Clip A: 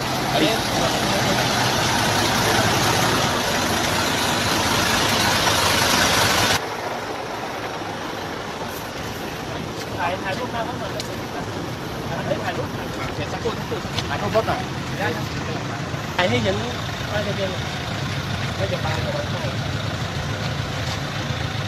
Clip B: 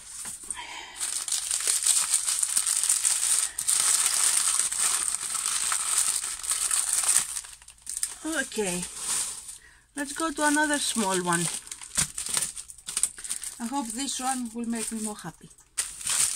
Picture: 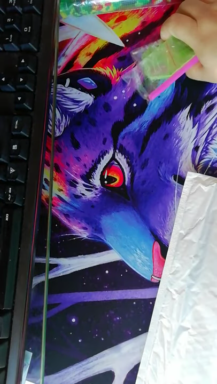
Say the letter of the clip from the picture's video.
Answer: B